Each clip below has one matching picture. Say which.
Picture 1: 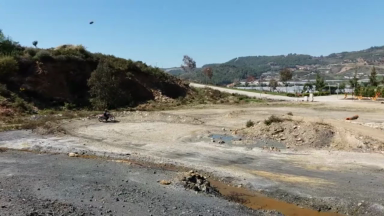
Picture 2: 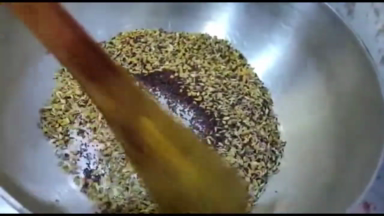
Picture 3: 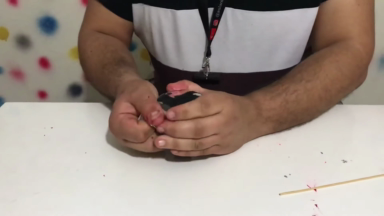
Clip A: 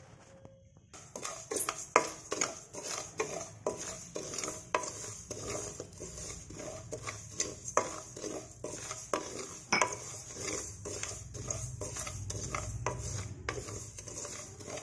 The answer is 2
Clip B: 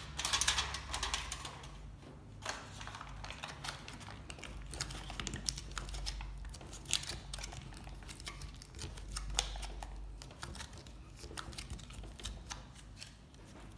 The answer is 3